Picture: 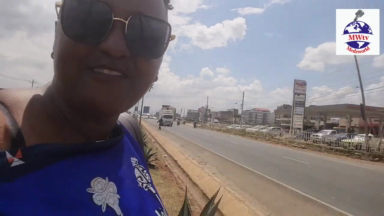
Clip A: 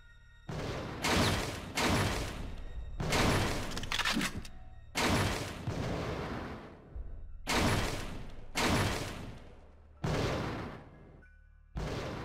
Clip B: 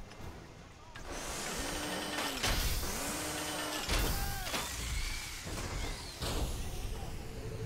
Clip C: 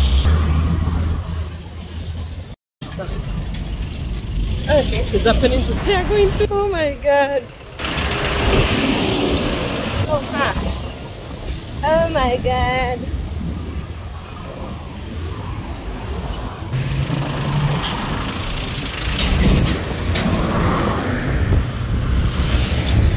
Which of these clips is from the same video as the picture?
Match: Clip C